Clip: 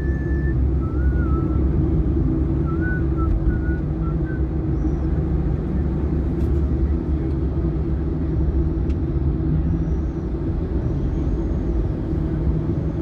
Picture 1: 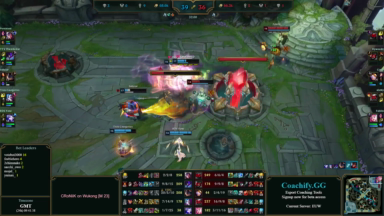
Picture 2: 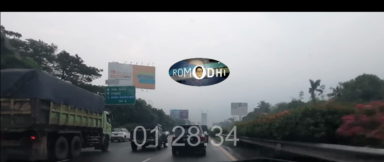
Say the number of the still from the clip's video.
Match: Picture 2